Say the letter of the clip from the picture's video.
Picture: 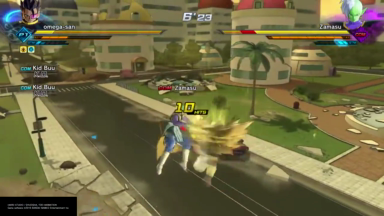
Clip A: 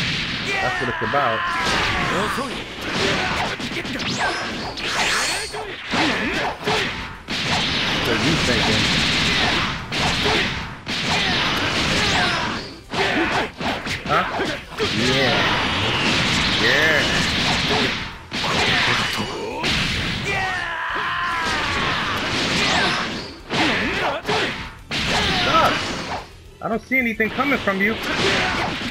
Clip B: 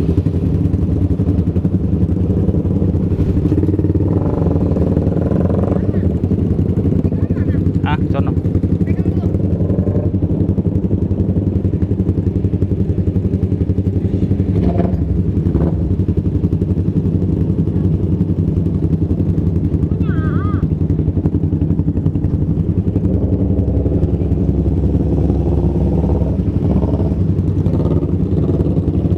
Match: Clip A